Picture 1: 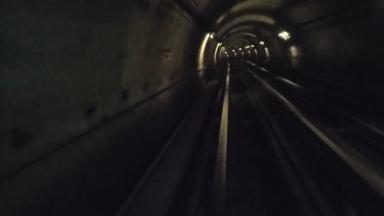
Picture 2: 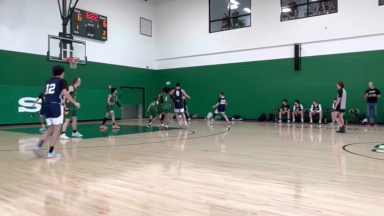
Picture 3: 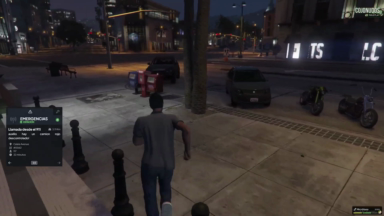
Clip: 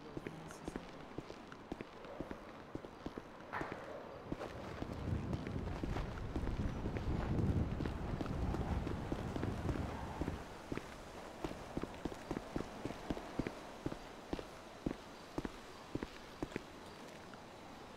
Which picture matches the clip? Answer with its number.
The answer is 3